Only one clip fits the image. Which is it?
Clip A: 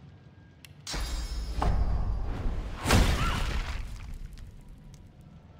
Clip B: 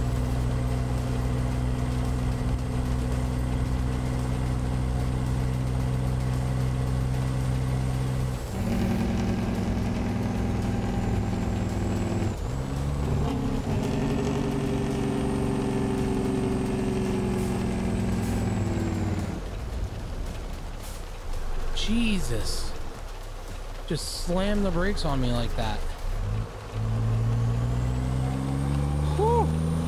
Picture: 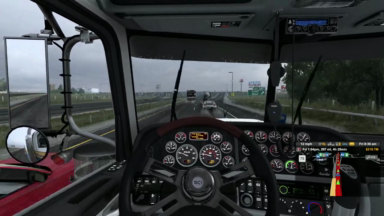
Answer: B